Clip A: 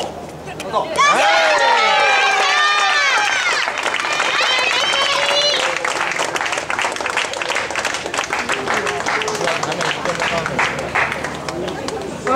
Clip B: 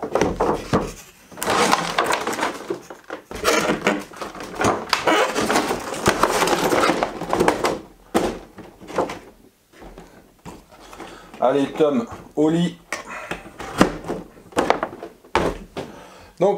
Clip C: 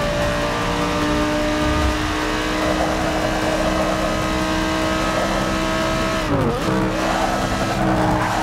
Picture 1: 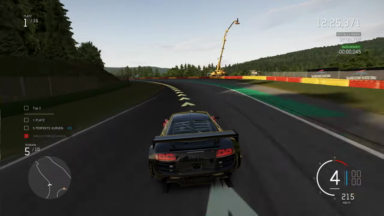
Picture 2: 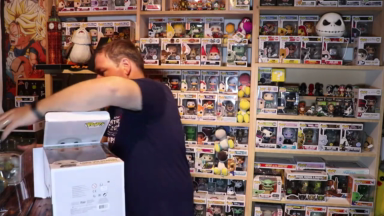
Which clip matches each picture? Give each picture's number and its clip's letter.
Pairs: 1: C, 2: B